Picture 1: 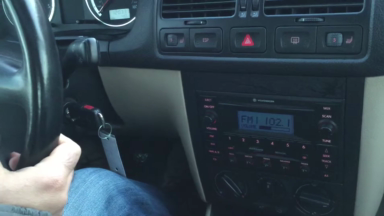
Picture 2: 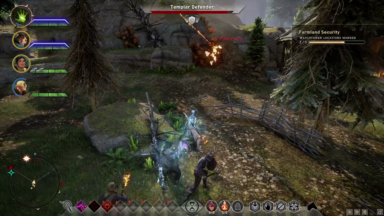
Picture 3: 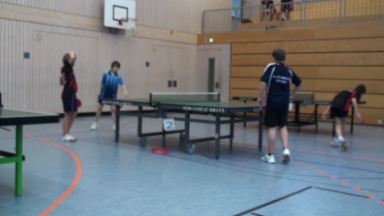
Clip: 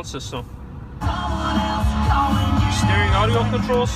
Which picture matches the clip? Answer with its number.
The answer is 1